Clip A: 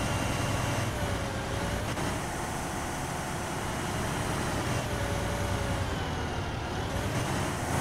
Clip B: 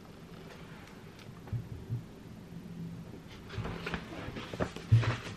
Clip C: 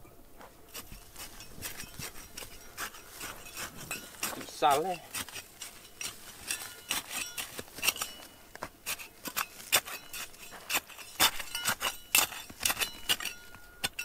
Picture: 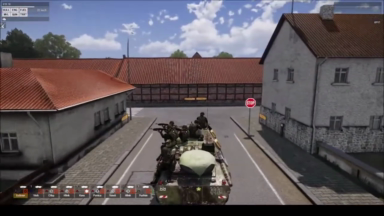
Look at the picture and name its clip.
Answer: A